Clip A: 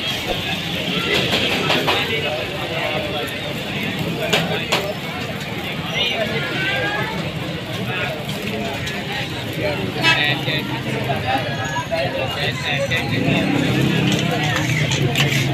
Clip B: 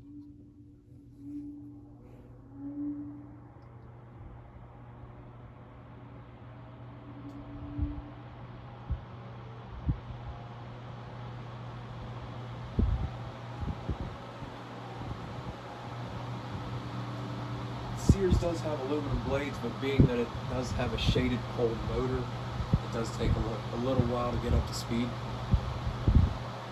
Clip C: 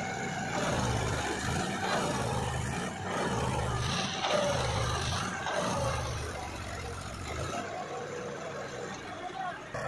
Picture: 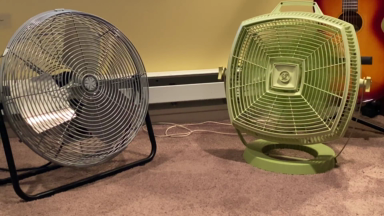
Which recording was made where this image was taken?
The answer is B